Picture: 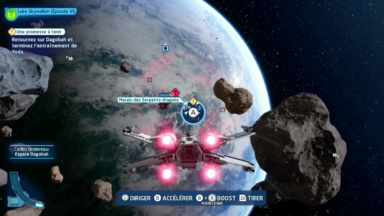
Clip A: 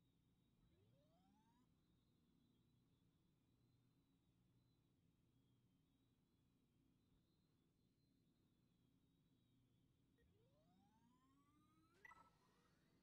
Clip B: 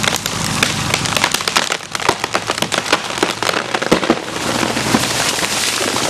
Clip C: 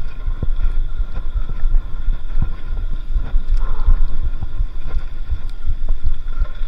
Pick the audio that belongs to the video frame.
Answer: A